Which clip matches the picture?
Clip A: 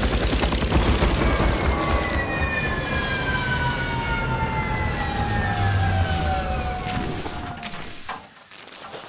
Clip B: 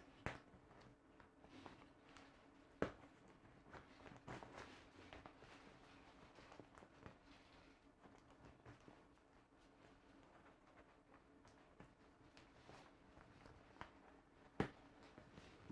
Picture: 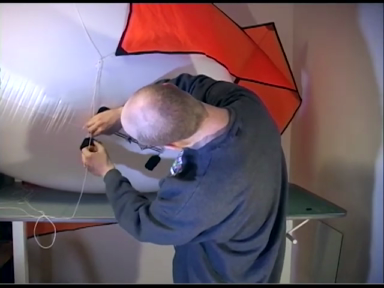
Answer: B